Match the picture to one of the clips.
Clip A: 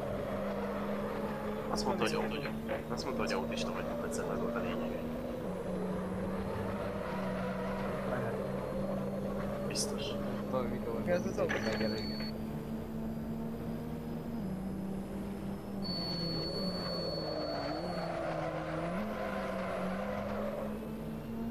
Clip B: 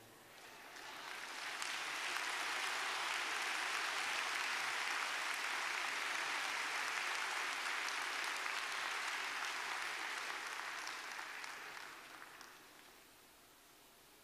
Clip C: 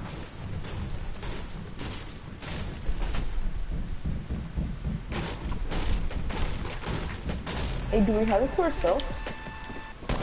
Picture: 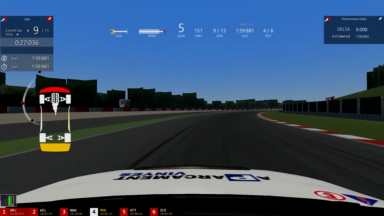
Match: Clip A